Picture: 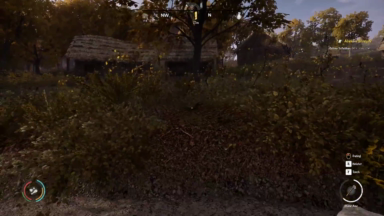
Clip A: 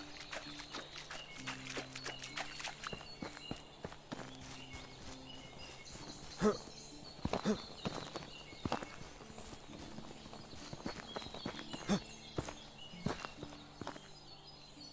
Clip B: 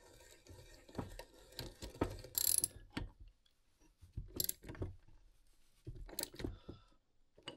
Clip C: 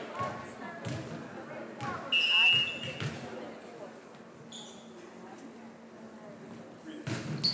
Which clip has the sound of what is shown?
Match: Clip A